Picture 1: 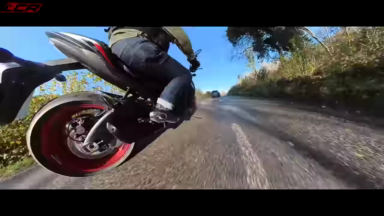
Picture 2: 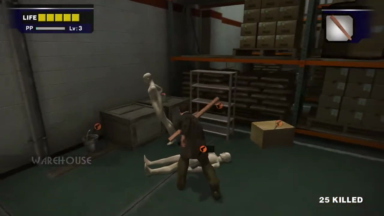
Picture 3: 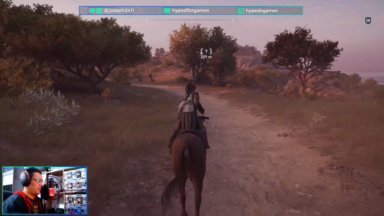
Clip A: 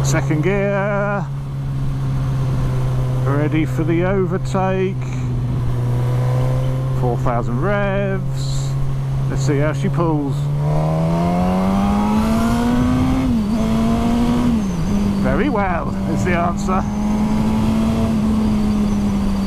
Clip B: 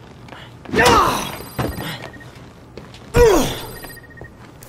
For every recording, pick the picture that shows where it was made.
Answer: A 1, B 2